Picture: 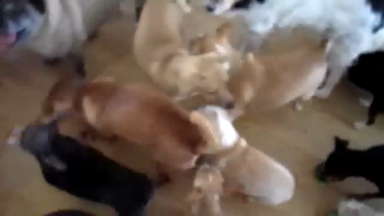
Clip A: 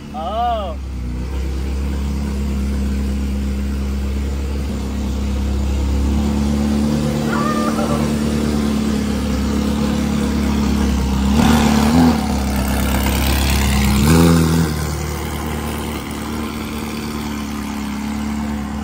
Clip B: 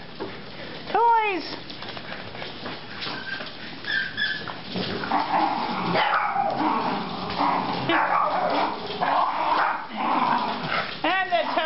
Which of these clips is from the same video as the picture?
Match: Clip B